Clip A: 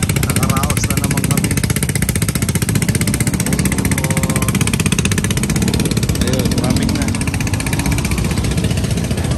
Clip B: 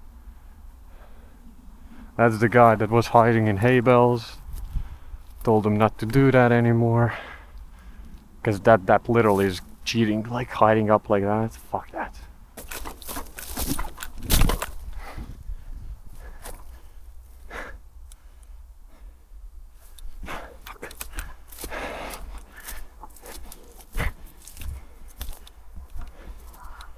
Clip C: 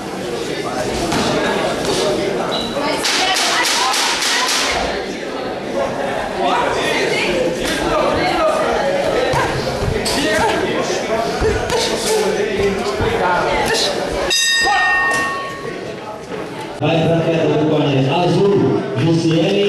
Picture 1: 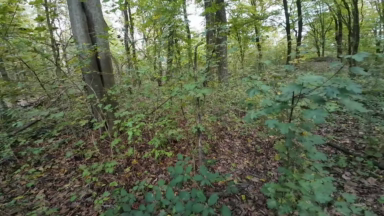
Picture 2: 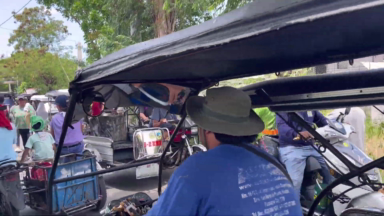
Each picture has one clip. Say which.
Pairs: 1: B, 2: A